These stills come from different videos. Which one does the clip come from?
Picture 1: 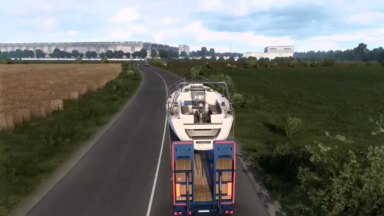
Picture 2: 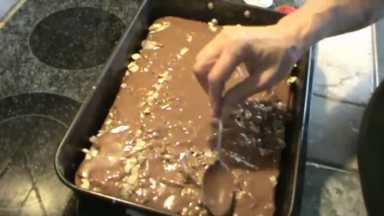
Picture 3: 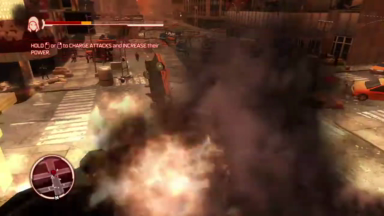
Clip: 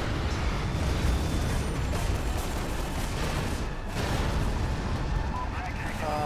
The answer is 3